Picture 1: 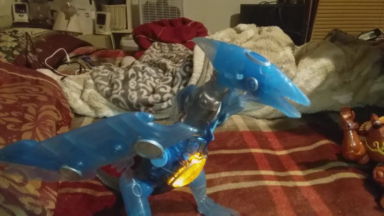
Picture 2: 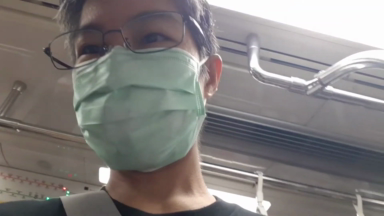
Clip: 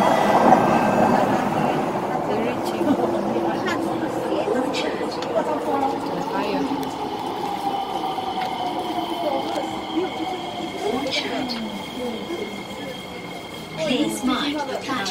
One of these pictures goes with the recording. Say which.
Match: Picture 2